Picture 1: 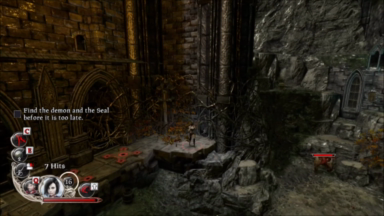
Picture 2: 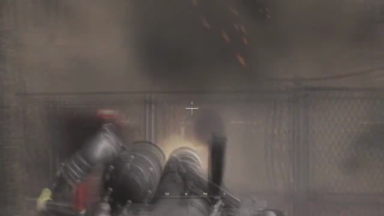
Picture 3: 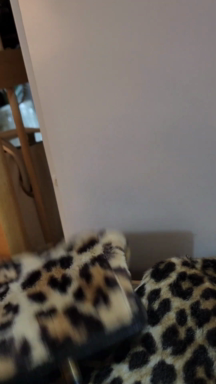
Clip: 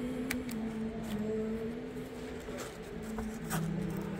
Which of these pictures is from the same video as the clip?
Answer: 3